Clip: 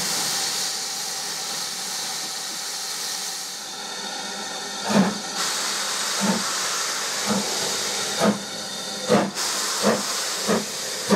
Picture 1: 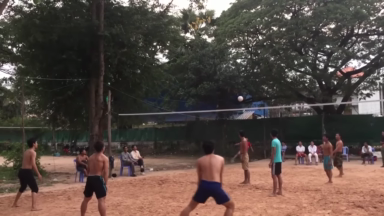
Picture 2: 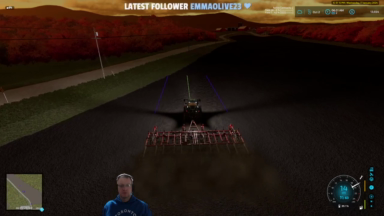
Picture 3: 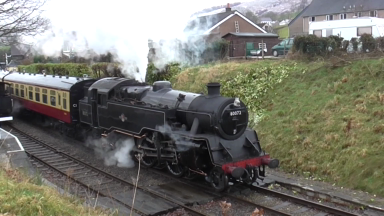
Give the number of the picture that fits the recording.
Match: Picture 3